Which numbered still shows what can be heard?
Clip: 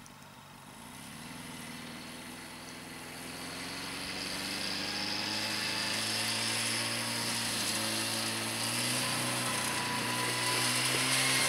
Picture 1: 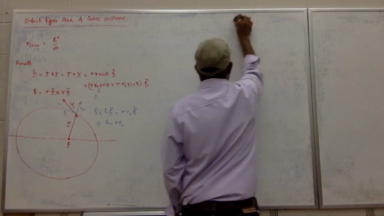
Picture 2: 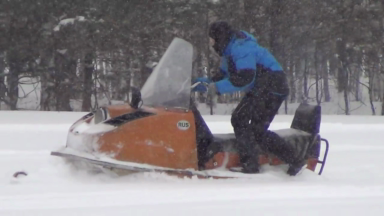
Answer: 2